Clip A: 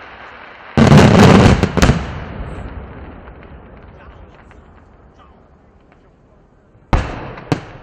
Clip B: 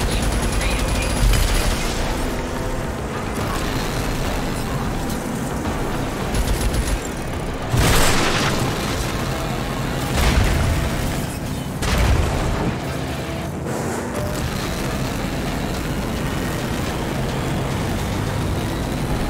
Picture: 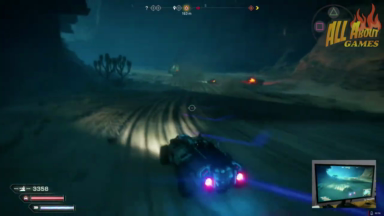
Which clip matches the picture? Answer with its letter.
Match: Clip B